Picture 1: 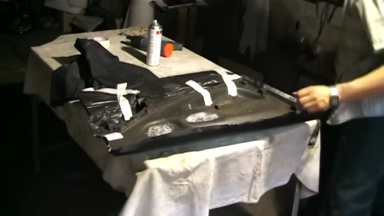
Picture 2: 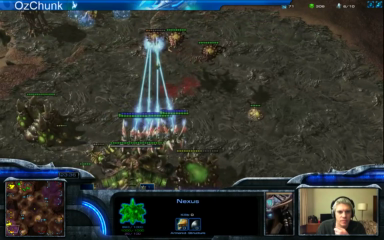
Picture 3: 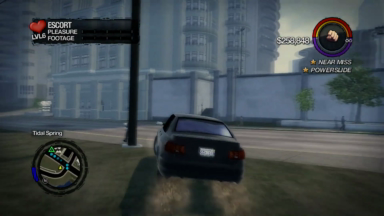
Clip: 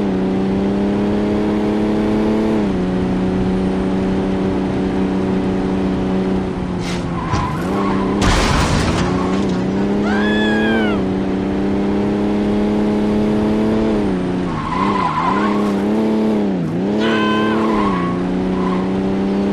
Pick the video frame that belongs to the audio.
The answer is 3